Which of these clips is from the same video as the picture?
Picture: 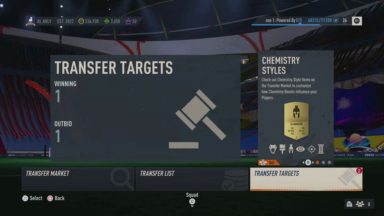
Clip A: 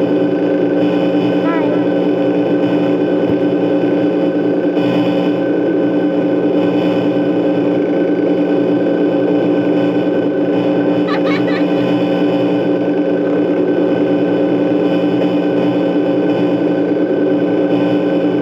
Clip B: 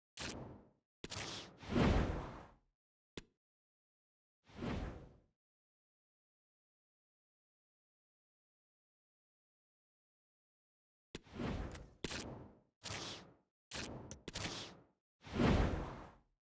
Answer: B